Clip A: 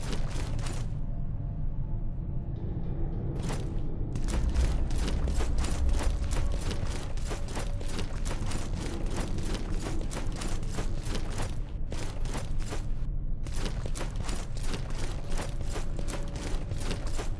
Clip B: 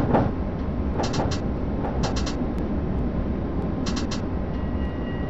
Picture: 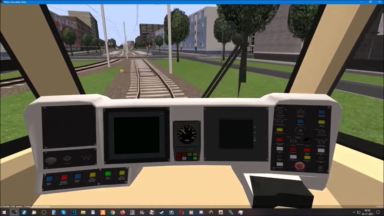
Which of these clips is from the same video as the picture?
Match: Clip B